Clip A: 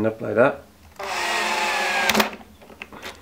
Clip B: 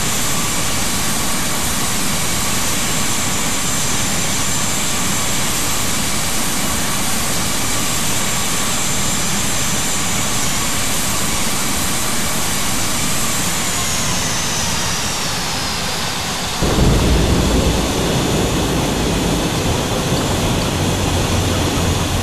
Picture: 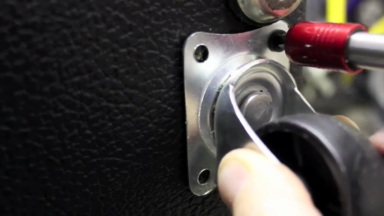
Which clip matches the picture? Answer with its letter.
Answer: A